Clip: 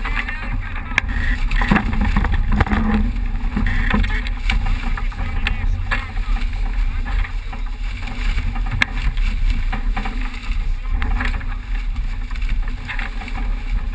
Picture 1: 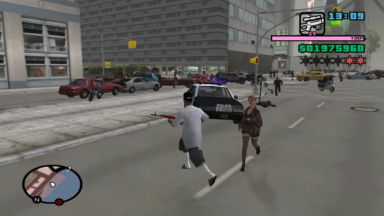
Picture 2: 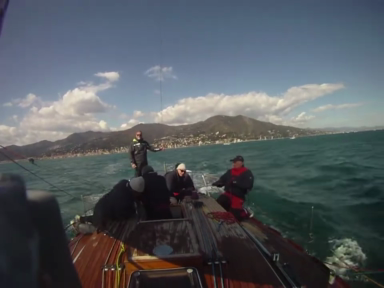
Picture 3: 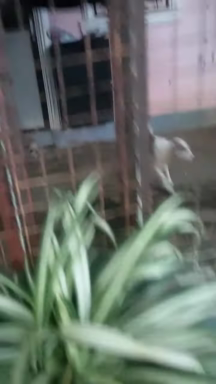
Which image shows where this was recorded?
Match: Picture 2